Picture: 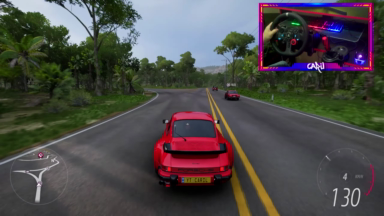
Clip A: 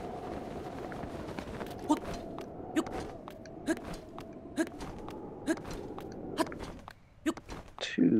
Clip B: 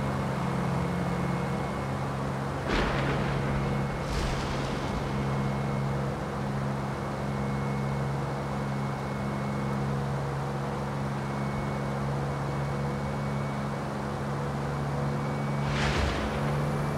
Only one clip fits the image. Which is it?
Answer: B